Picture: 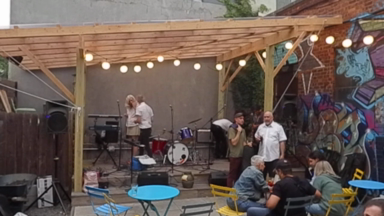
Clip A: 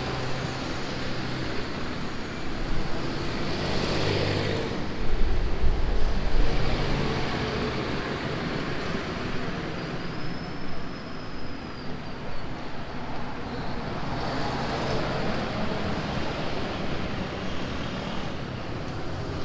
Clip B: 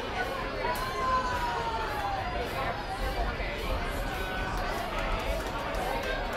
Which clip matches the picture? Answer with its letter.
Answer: B